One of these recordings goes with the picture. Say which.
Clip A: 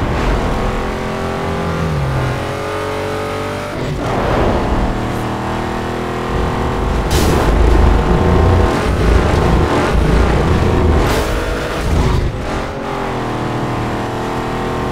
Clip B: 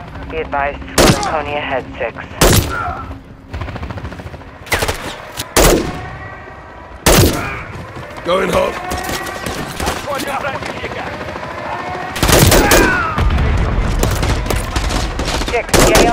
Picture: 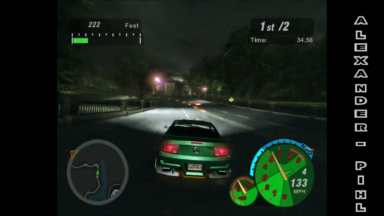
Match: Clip A